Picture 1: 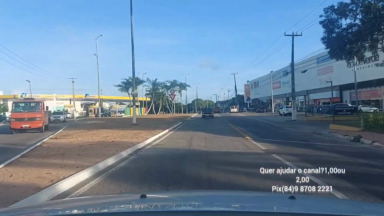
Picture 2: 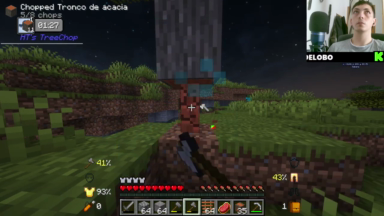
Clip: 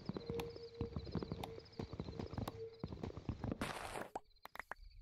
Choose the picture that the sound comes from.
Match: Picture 2